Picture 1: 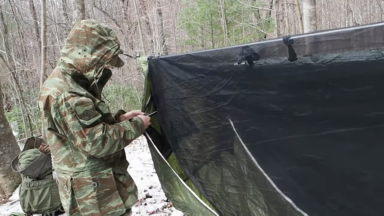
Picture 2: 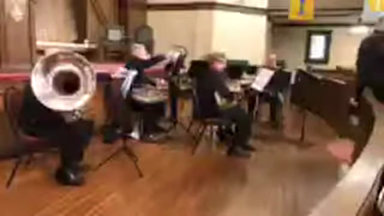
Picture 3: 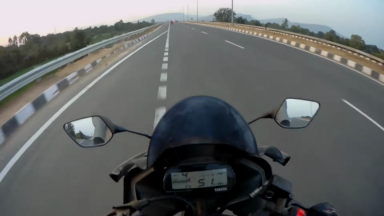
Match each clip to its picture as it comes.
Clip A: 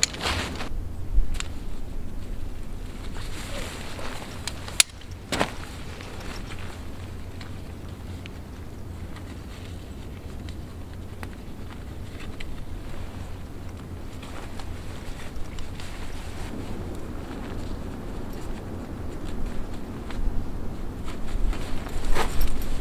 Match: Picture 1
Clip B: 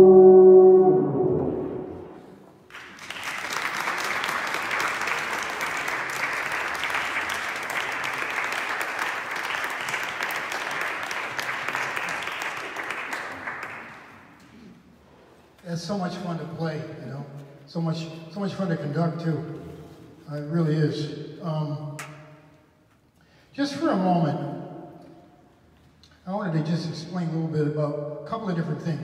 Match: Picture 2